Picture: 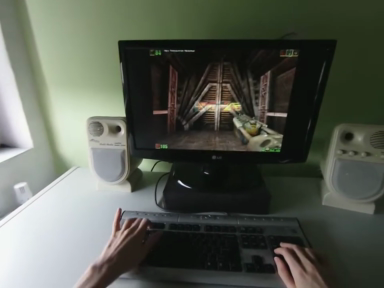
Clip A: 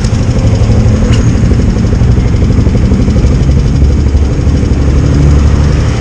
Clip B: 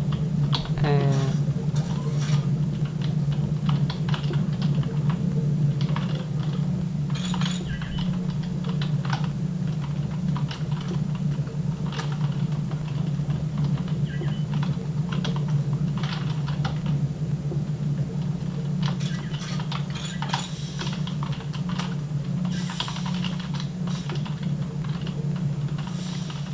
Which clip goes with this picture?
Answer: B